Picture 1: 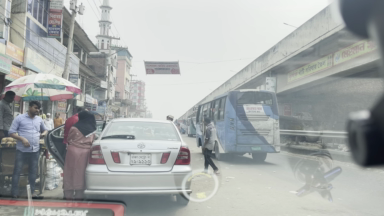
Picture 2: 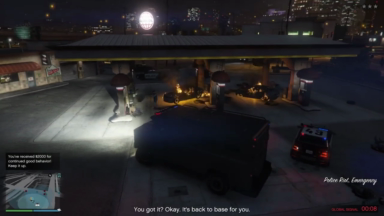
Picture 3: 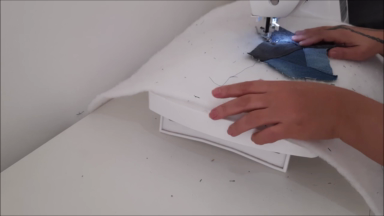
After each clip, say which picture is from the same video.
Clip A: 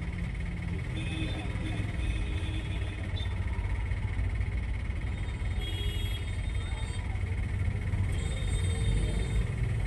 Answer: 1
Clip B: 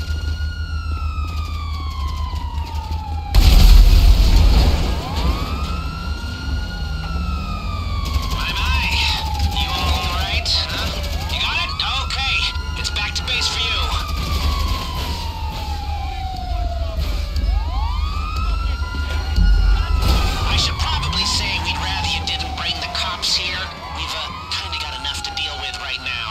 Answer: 2